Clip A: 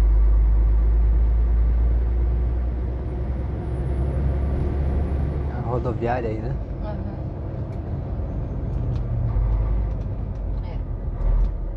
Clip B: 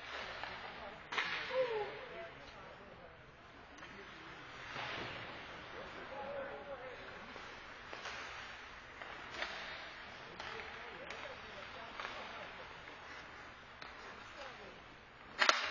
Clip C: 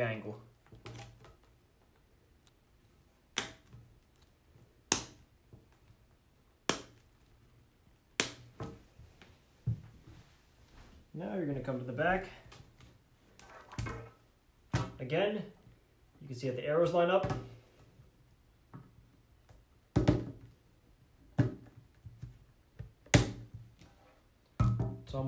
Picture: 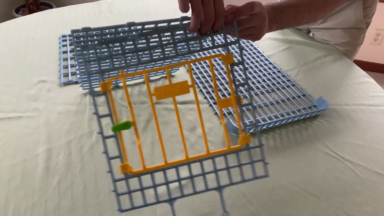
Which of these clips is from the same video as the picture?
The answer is C